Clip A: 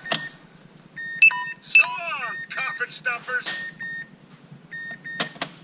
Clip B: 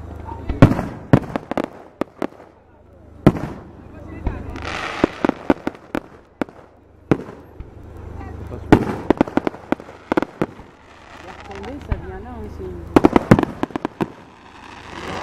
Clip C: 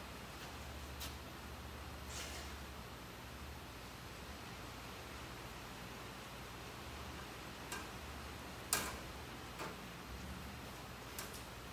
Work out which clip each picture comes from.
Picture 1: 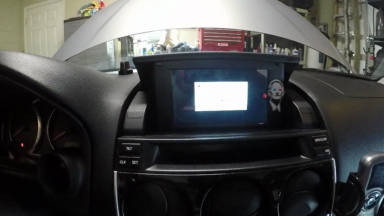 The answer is A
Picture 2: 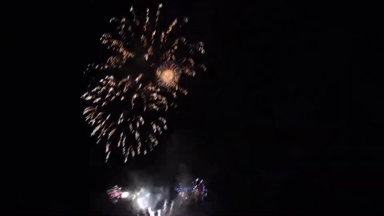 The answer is B